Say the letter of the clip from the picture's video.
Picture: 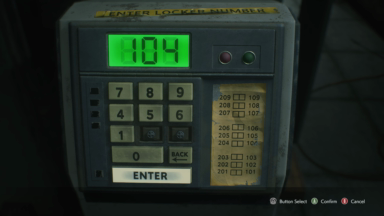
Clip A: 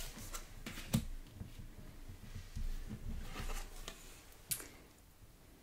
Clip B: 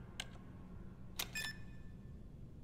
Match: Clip B